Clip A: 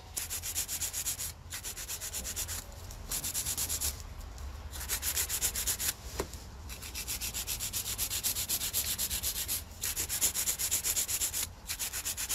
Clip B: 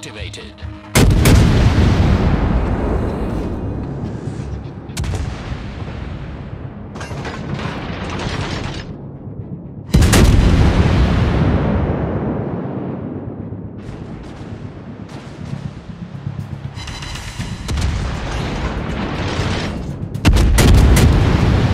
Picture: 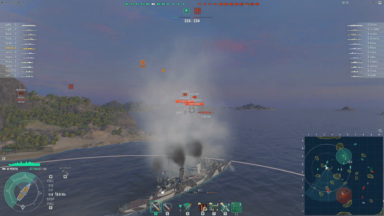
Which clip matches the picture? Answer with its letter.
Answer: B